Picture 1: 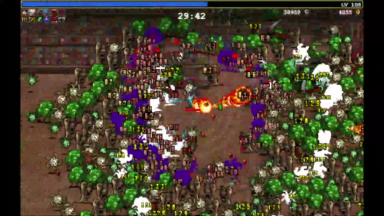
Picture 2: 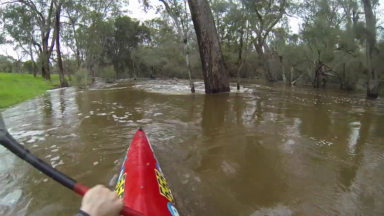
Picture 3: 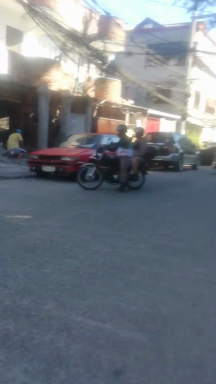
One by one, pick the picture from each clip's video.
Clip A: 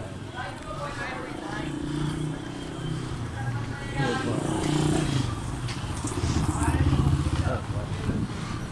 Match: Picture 3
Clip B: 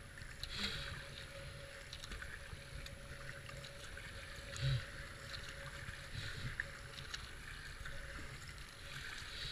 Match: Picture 2